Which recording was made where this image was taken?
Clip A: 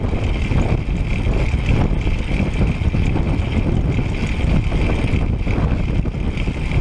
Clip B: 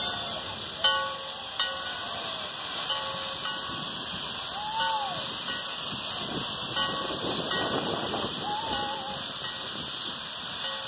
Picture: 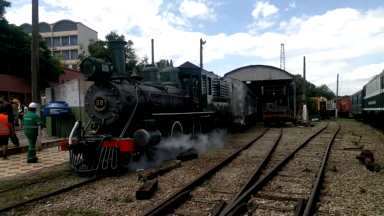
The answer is B